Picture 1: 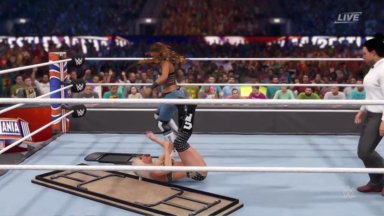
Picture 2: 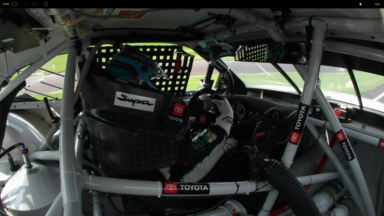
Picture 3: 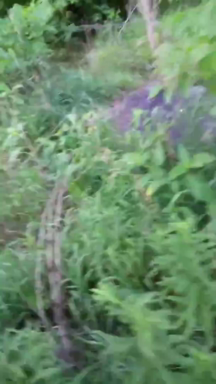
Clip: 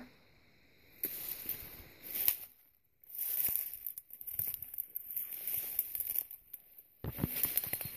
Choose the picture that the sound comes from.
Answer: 3